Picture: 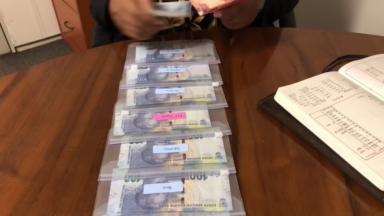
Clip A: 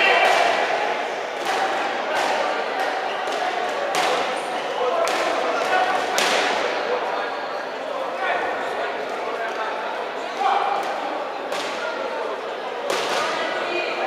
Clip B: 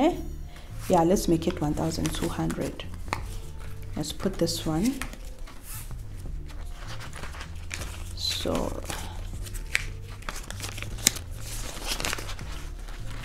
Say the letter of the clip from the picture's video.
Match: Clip B